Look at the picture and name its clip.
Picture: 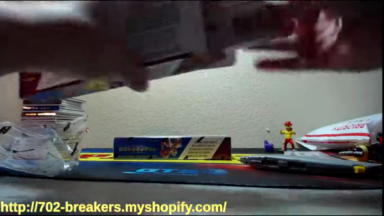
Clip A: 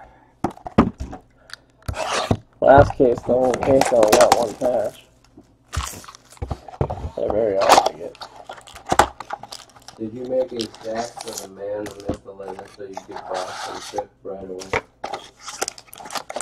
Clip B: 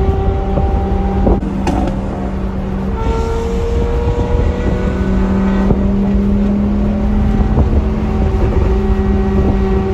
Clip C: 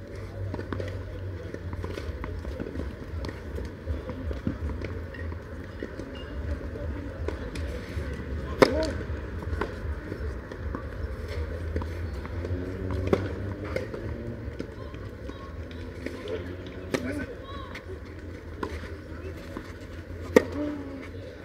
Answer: A